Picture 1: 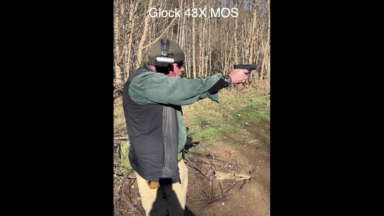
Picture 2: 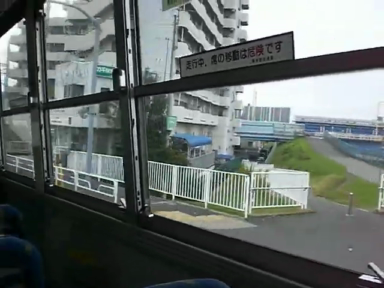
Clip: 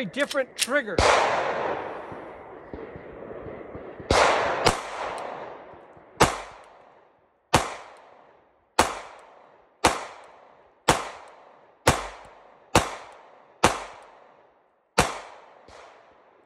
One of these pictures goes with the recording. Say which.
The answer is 1